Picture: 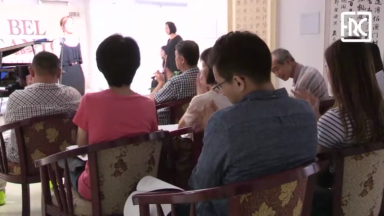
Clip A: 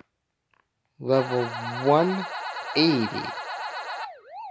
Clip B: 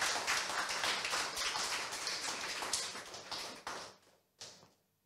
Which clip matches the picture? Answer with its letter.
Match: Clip B